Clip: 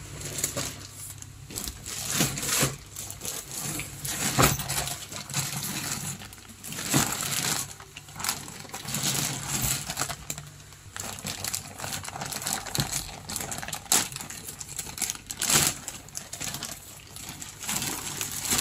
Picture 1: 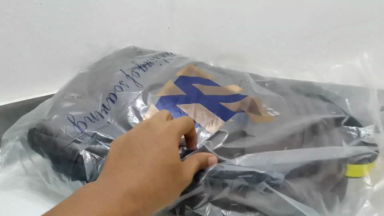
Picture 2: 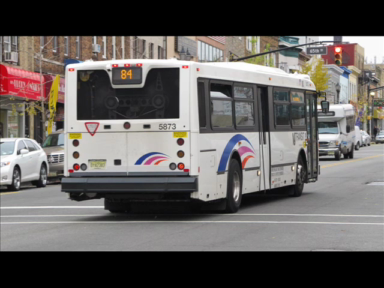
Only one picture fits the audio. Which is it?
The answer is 1